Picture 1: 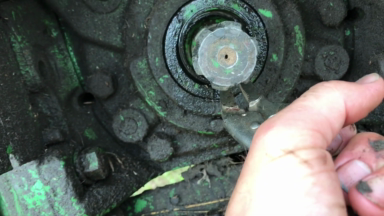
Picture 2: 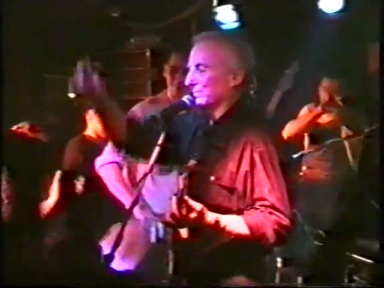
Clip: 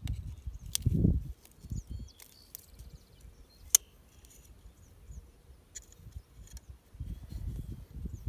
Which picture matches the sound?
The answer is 1